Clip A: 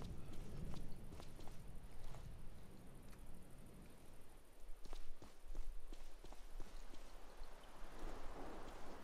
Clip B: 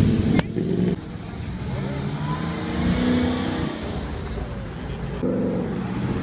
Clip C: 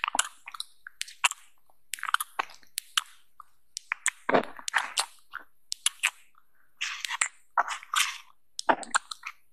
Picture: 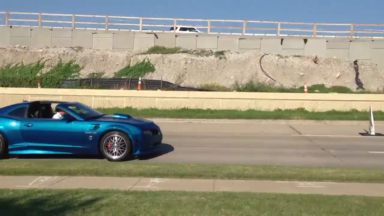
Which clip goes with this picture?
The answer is B